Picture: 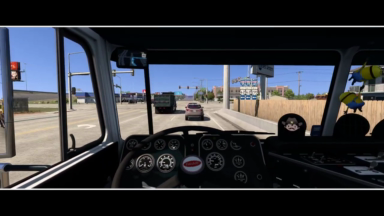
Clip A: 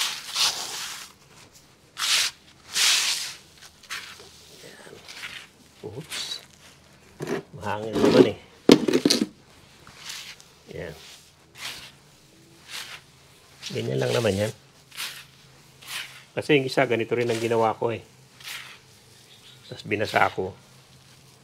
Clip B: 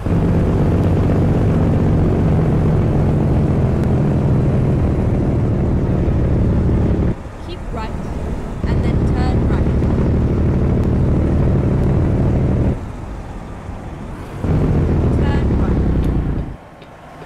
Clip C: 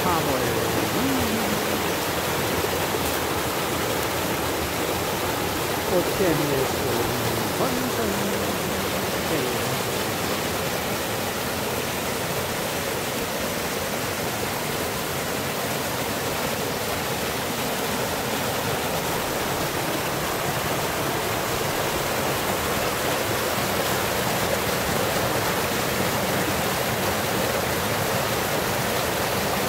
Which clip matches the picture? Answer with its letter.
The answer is B